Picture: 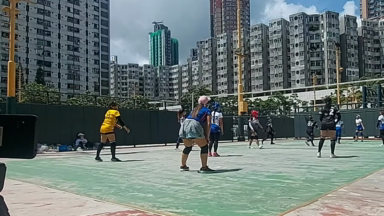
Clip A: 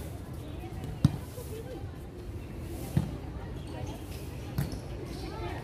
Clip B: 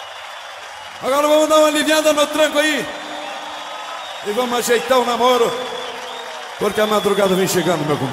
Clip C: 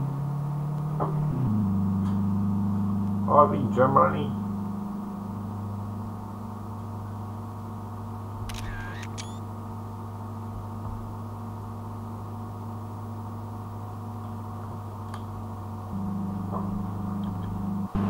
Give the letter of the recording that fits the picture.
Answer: A